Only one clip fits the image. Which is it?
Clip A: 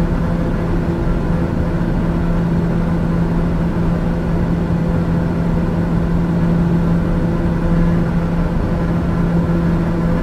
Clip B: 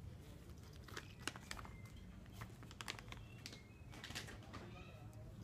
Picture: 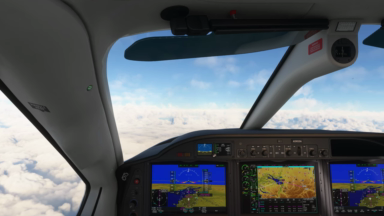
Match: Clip A